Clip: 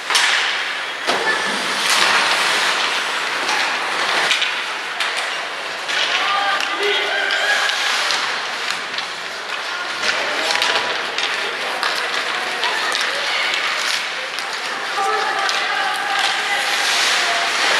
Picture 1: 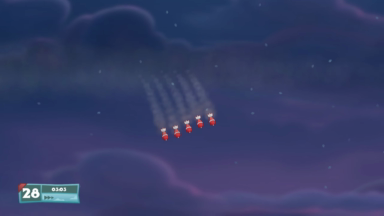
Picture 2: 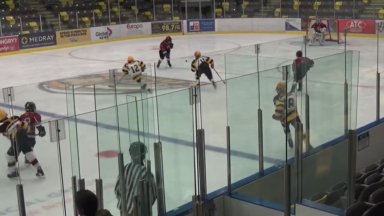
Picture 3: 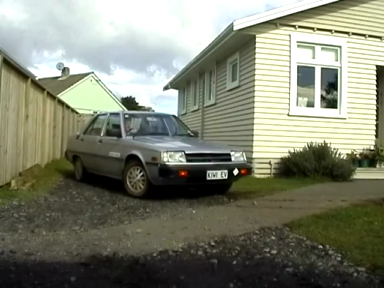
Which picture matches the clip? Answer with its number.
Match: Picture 2